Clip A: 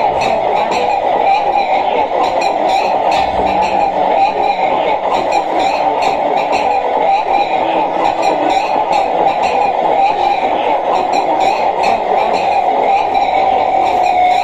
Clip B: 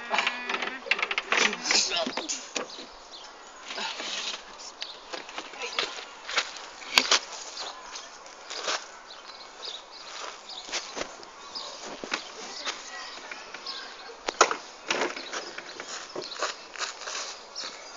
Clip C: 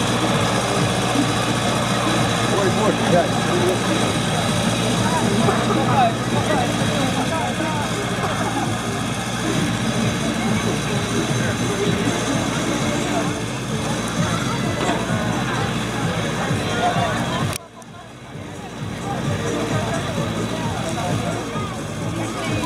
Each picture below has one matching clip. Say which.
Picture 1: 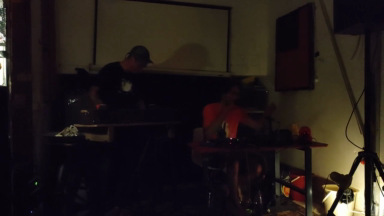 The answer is A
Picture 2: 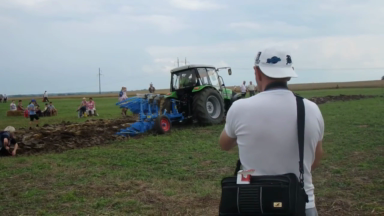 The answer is C